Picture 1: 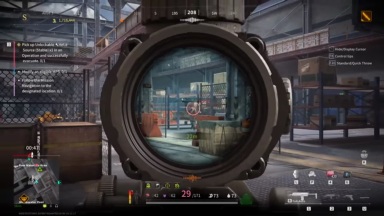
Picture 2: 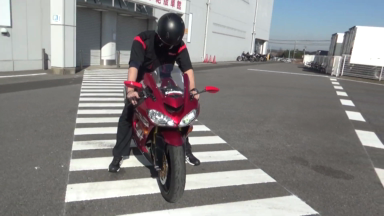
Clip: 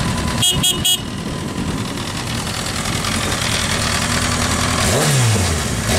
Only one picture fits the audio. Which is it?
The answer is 2